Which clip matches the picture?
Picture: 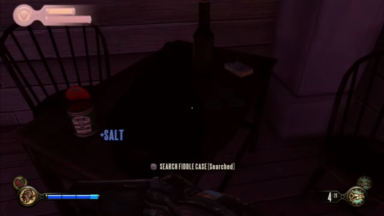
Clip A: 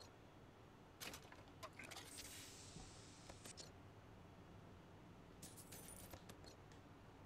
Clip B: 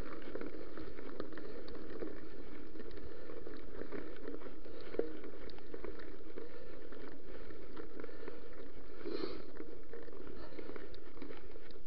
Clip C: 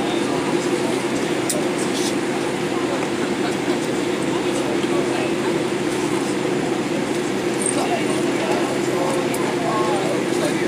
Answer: A